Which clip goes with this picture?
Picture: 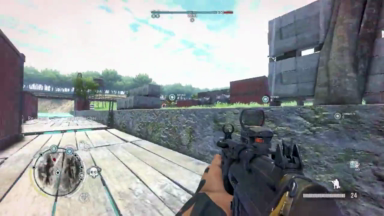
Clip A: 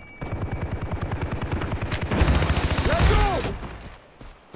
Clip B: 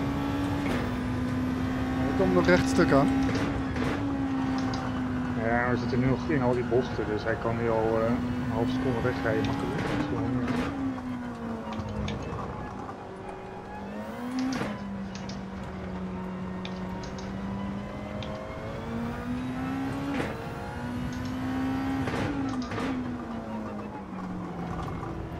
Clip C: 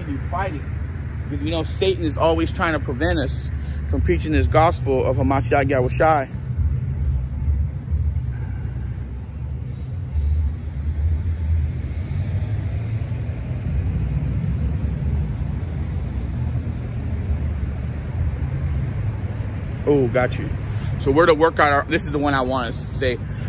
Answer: A